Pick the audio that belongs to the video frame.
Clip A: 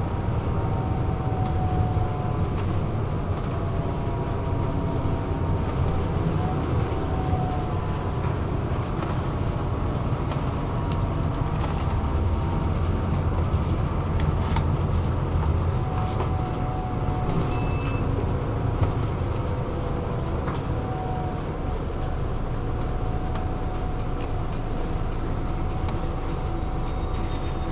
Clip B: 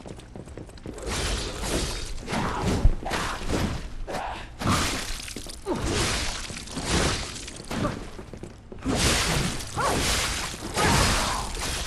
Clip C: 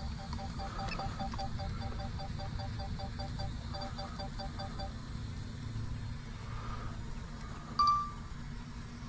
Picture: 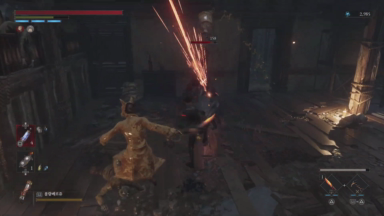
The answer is B